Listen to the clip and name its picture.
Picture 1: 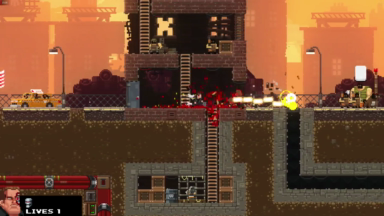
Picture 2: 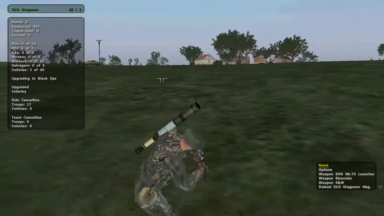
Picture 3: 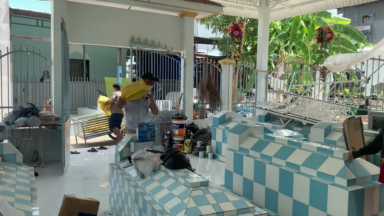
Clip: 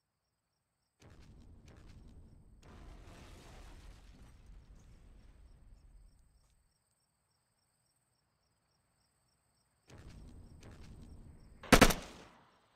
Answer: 2